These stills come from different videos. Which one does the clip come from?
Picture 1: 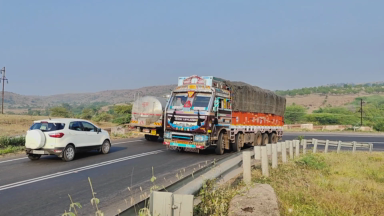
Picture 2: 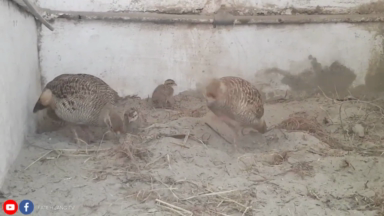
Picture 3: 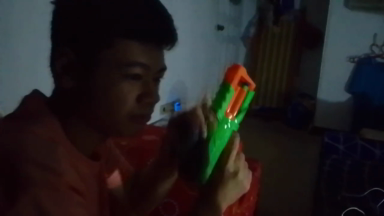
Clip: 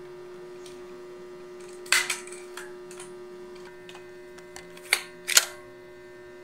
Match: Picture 3